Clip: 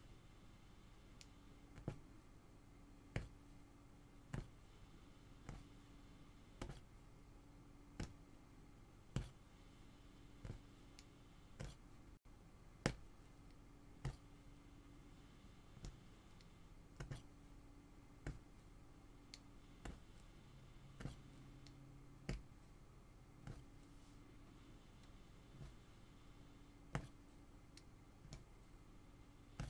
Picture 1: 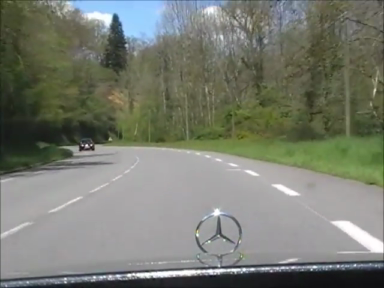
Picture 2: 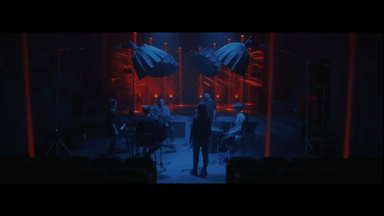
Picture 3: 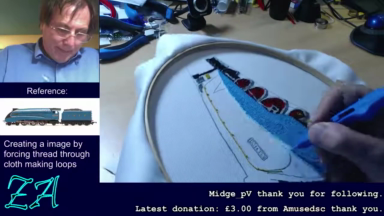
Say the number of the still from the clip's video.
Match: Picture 3